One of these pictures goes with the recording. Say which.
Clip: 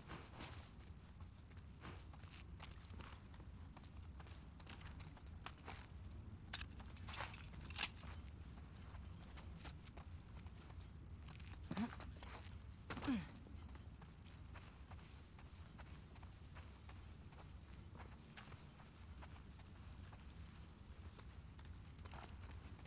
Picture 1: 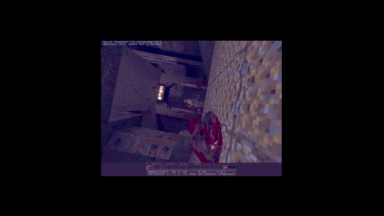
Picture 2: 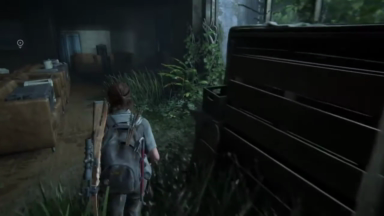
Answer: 2